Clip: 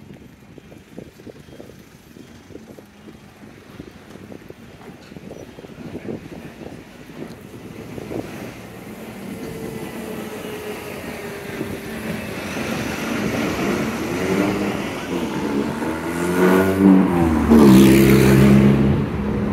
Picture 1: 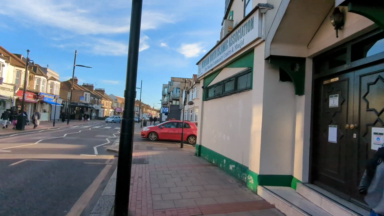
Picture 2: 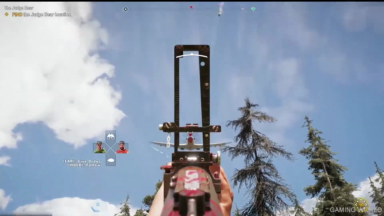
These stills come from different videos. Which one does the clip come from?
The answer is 1